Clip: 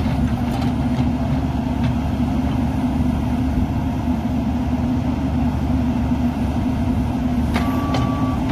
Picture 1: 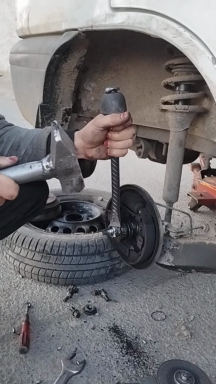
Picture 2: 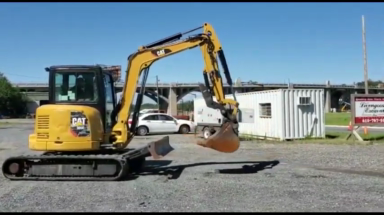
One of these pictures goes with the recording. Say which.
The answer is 2